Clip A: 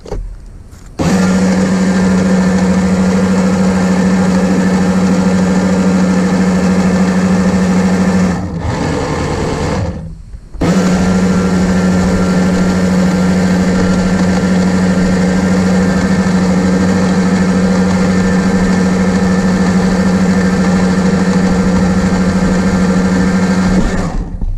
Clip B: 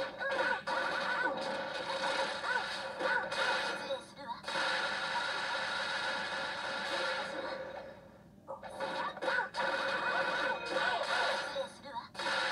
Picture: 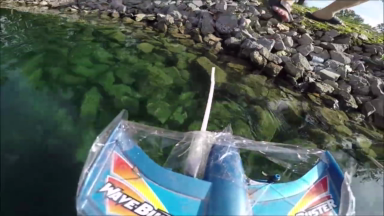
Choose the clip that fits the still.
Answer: A